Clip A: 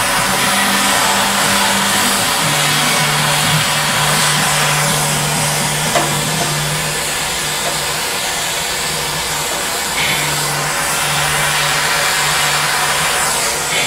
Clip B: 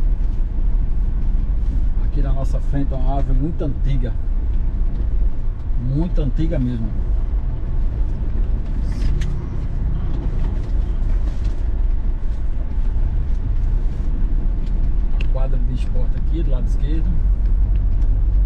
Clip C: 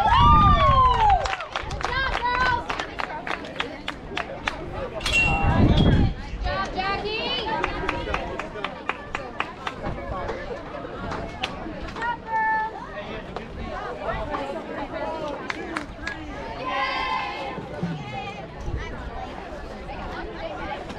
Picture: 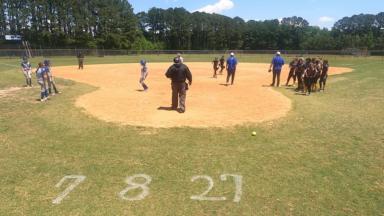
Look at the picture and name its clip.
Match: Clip C